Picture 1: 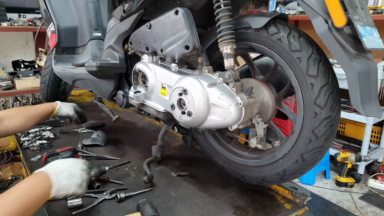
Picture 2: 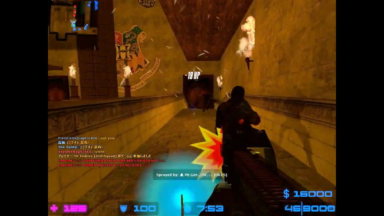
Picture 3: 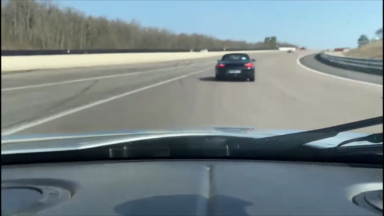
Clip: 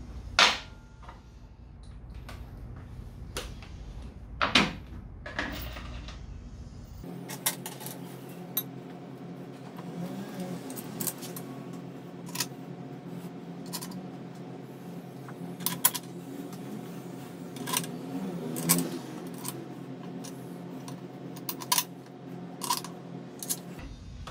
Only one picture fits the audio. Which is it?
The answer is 1